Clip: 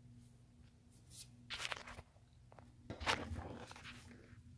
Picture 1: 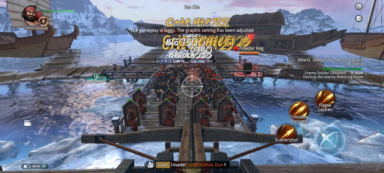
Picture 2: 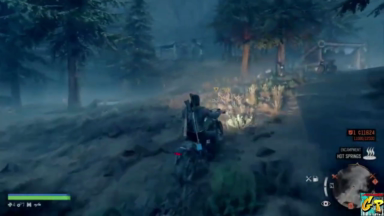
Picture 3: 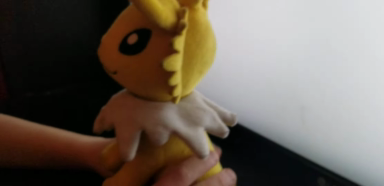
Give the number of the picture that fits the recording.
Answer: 3